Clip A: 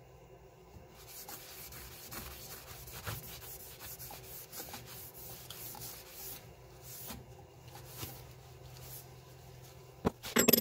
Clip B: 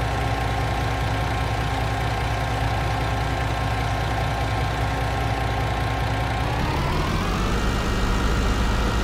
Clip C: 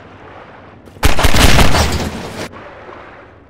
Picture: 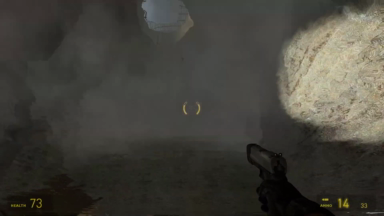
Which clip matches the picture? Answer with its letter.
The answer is C